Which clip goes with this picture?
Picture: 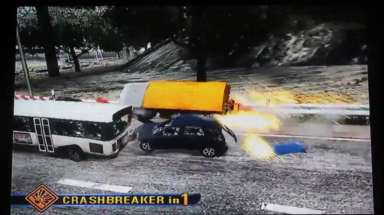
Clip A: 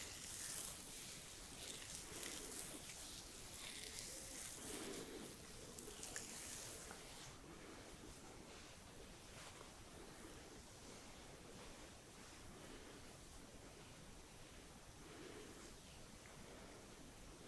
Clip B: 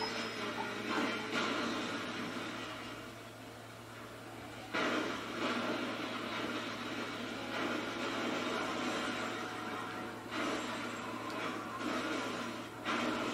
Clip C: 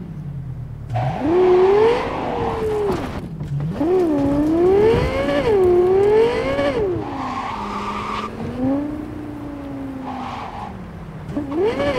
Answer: B